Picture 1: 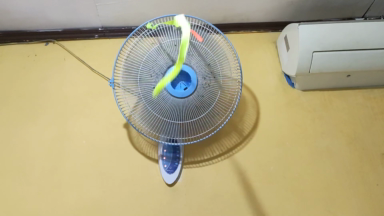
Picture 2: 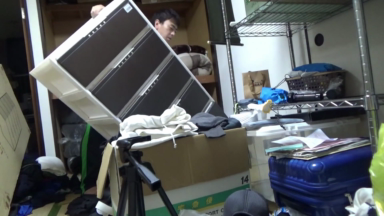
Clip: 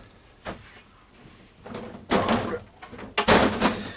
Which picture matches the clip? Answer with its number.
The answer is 2